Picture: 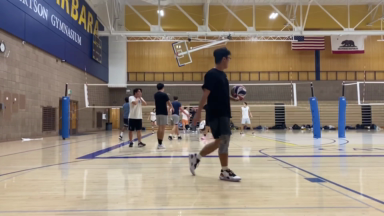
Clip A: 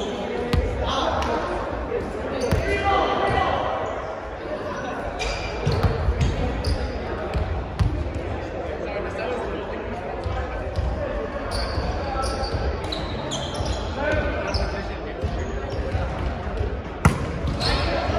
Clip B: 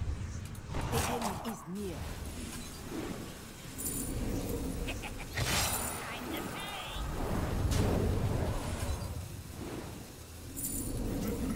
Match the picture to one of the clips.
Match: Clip A